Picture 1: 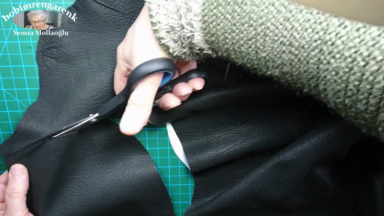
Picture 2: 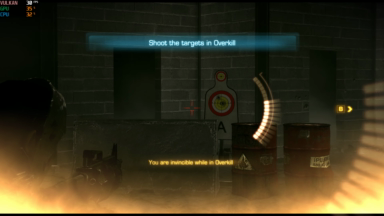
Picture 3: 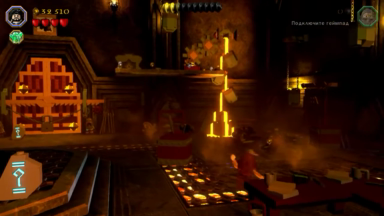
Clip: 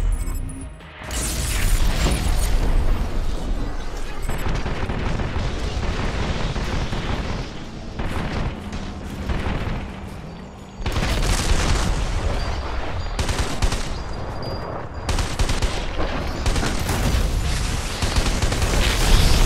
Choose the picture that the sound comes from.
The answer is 2